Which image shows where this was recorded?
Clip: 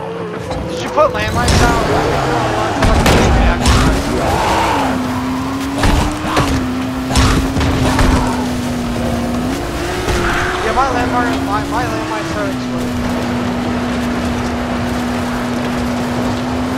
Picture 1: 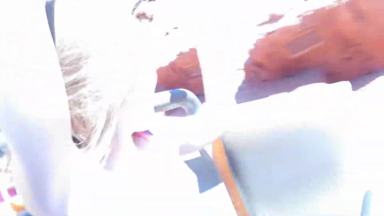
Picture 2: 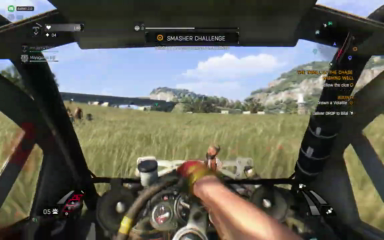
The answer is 2